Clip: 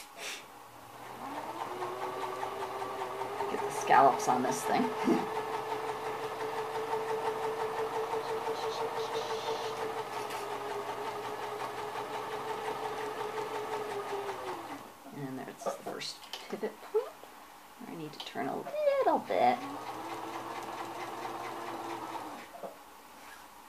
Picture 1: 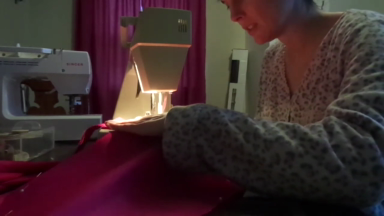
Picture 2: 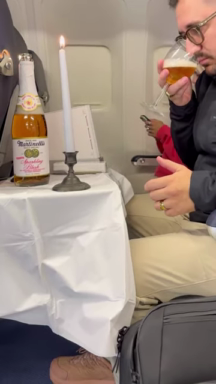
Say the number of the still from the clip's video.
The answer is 1